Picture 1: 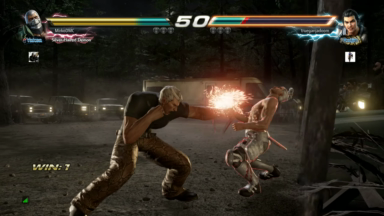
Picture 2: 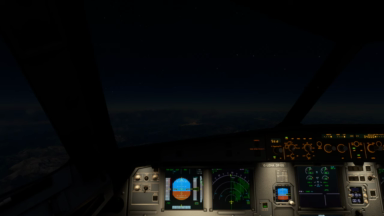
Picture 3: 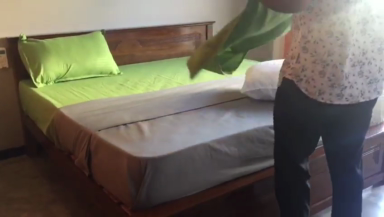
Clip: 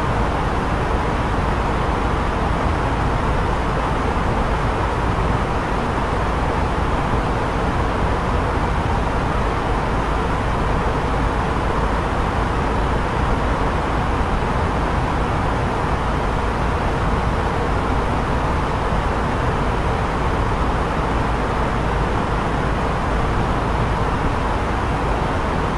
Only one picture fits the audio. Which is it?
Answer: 2